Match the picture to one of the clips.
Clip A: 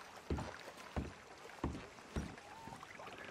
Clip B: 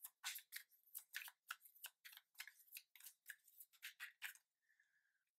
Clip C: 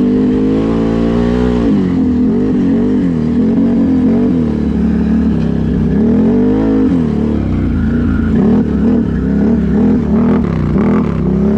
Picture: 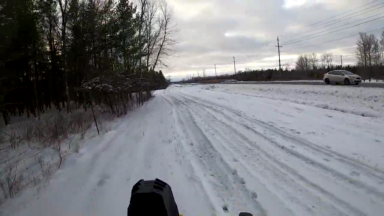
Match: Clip C